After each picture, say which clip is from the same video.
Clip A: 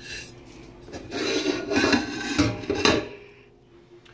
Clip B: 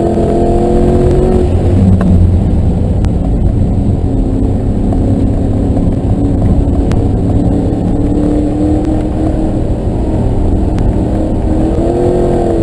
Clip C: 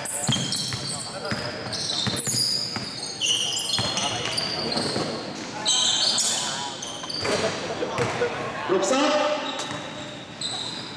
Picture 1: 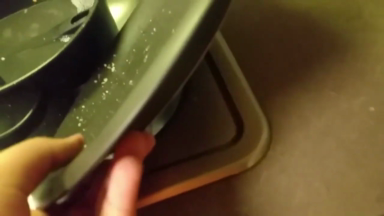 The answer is A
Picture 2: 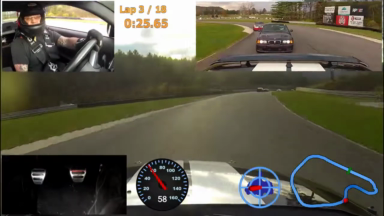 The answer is B